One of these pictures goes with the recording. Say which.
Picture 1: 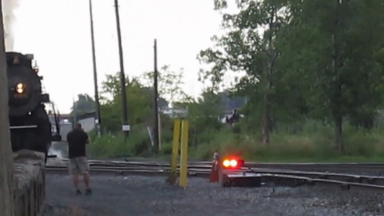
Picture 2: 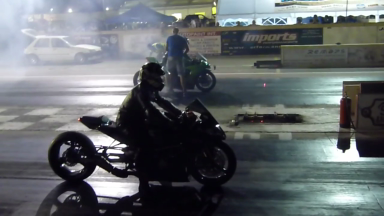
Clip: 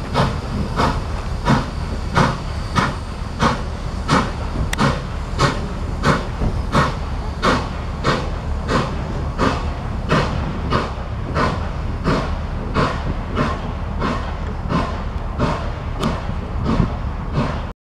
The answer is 1